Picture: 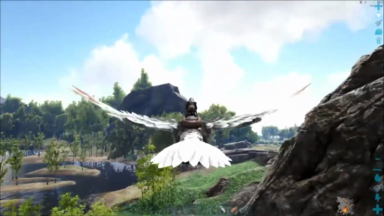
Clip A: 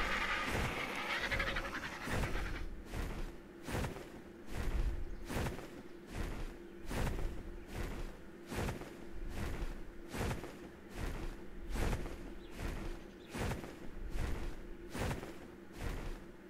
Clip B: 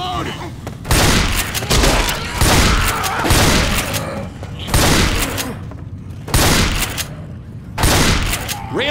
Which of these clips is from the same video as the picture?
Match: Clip A